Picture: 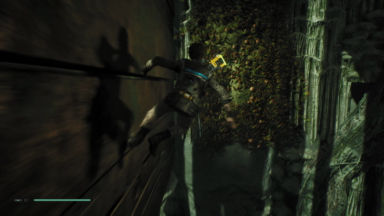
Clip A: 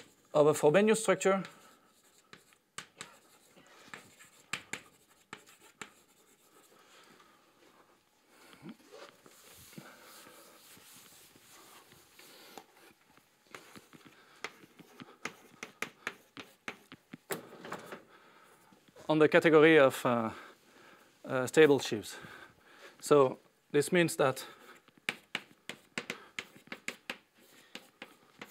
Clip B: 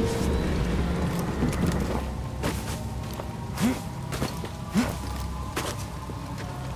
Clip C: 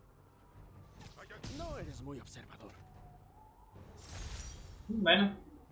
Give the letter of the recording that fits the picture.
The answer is B